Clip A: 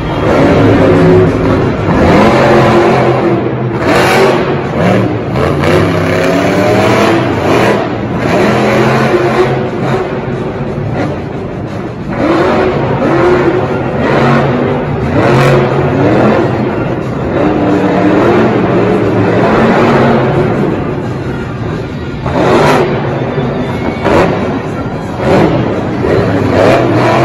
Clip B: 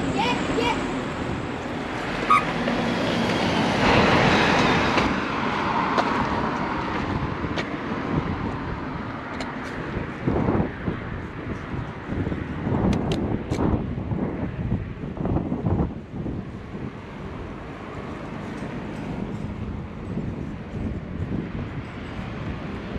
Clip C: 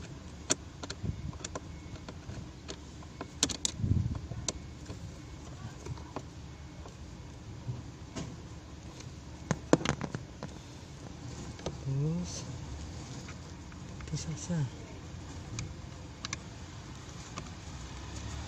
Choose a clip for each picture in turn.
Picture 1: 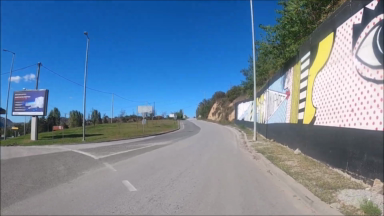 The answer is B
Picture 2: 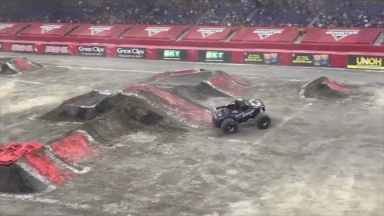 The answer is A